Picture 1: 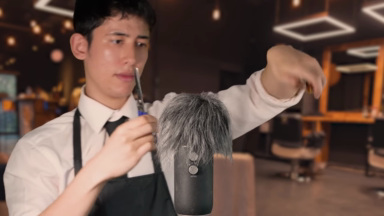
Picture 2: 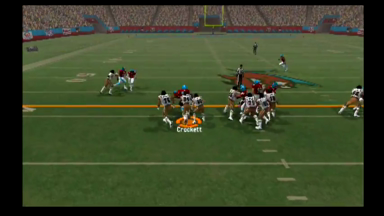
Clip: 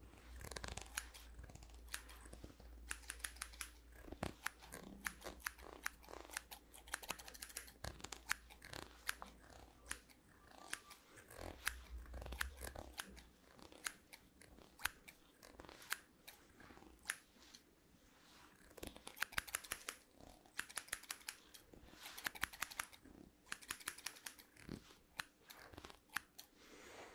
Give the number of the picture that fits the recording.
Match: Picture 1